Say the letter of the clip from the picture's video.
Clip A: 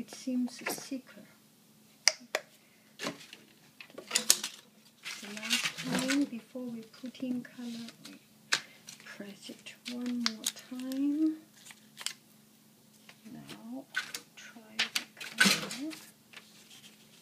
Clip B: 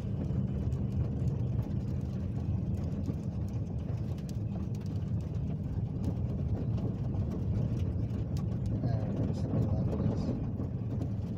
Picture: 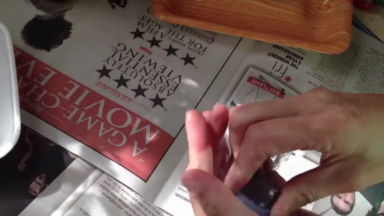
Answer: A